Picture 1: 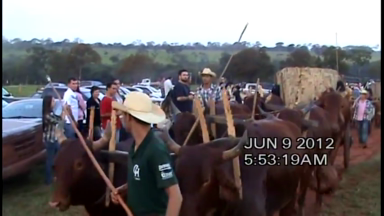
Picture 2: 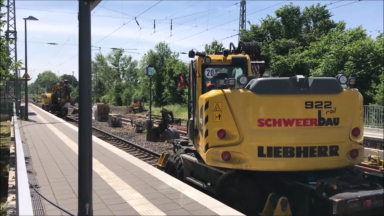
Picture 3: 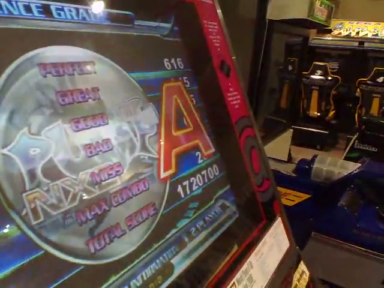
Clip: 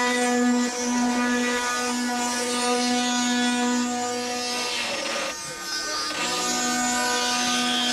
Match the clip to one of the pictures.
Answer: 1